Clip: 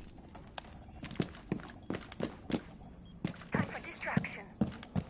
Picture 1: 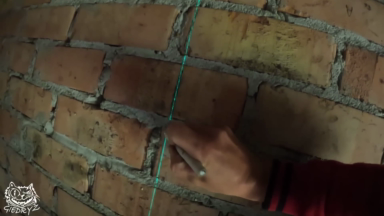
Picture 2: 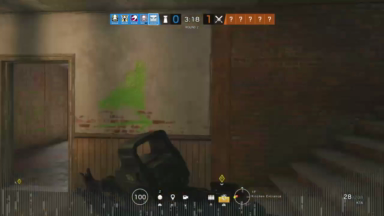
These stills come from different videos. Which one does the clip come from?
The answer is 2